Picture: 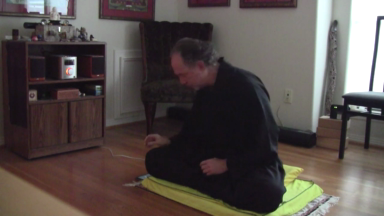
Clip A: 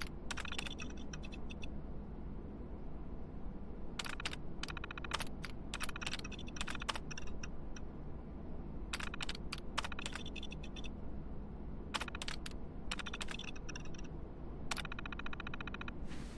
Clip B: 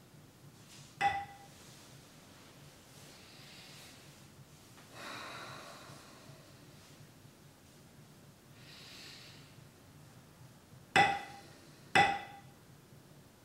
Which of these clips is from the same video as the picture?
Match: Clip B